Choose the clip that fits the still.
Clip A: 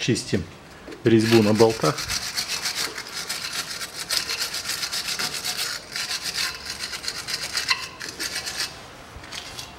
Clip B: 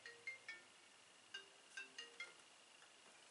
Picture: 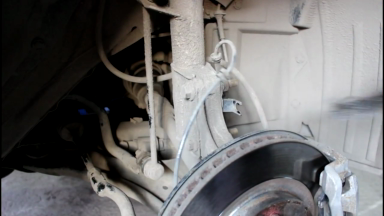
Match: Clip A